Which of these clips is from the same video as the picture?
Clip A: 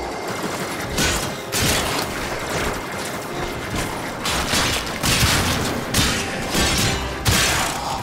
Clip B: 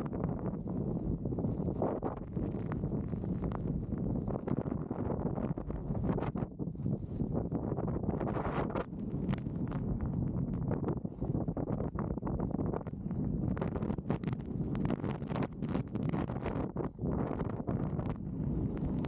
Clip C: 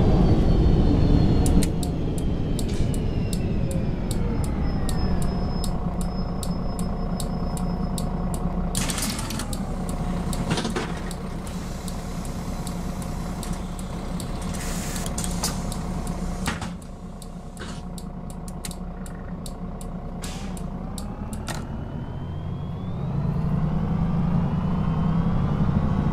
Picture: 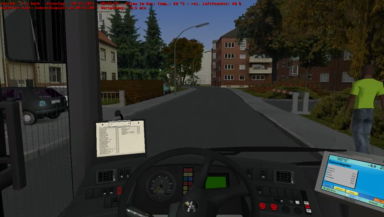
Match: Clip C